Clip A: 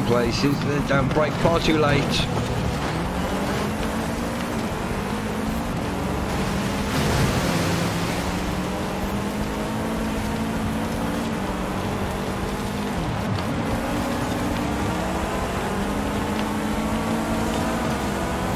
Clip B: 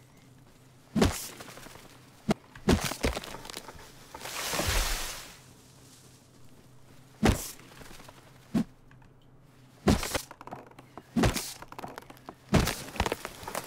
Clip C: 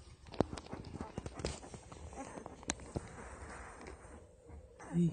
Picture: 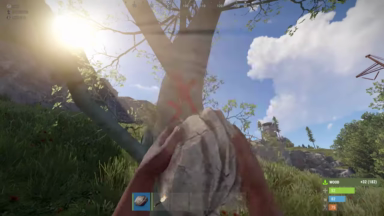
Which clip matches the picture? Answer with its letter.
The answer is B